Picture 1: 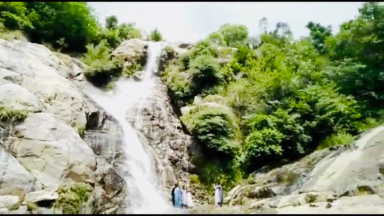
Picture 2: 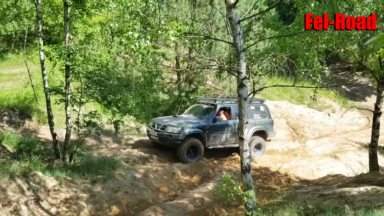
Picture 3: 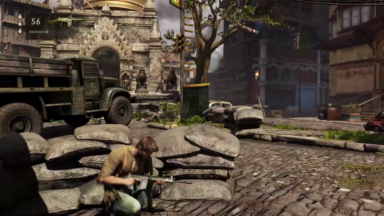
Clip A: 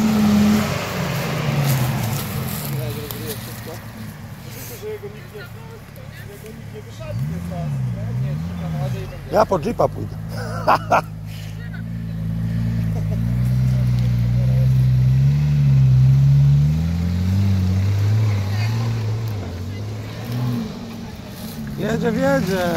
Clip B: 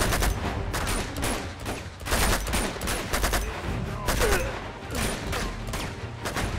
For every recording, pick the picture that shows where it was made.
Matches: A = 2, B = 3